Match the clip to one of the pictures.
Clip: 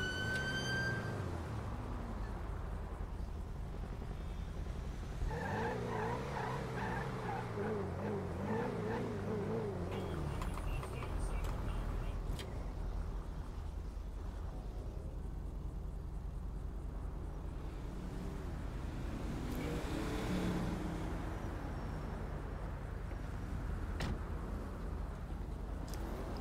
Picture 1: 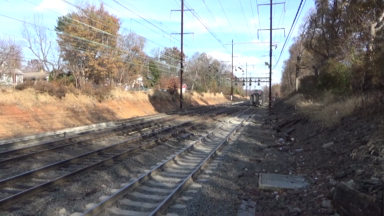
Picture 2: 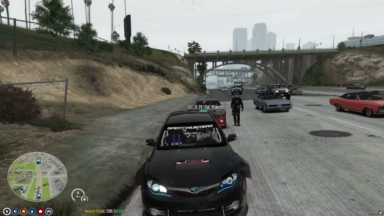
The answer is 2